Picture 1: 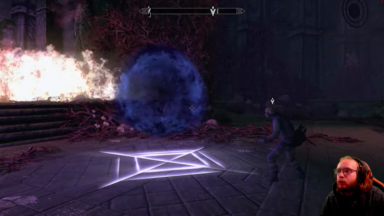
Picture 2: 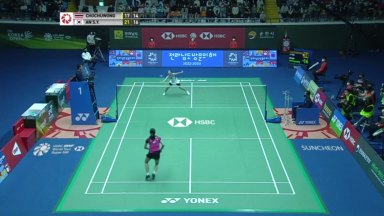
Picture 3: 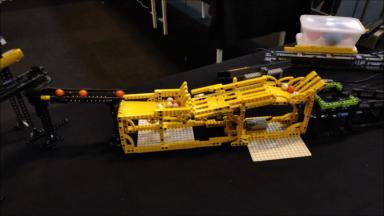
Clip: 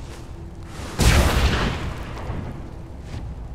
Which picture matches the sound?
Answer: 1